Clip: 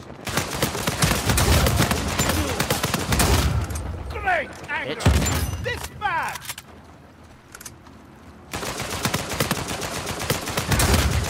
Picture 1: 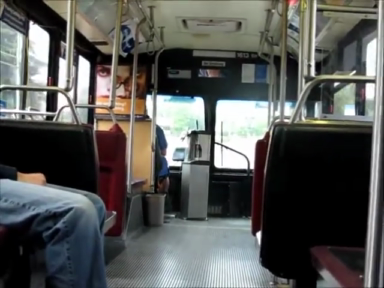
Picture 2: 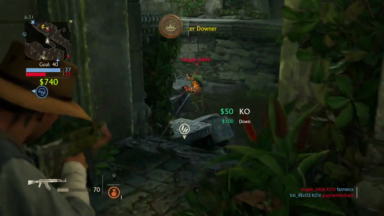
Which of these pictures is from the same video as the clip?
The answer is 2